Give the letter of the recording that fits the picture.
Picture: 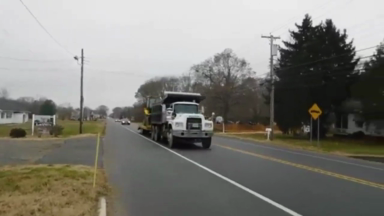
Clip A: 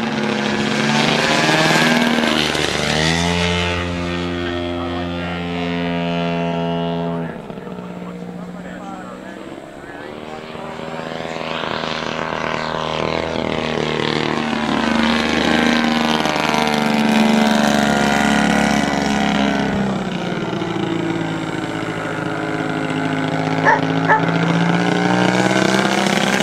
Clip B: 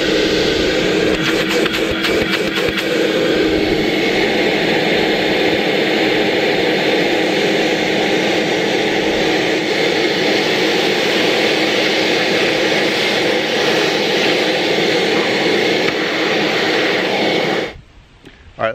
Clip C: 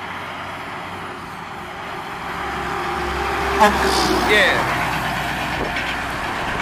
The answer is C